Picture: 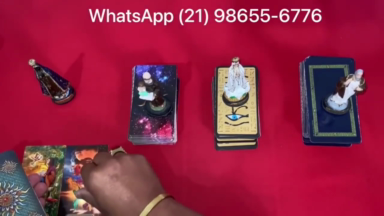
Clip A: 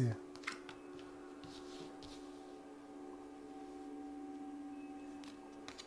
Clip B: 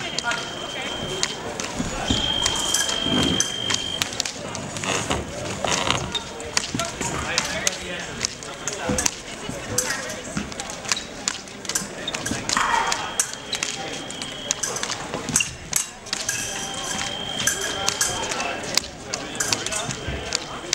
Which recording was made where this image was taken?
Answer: A